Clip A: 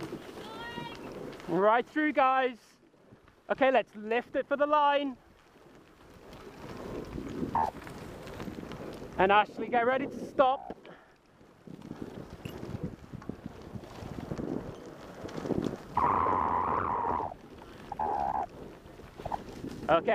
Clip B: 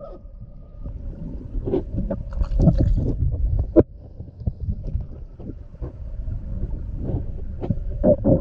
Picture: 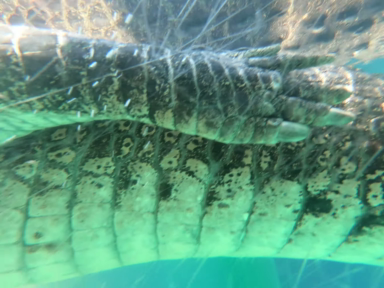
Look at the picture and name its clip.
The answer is B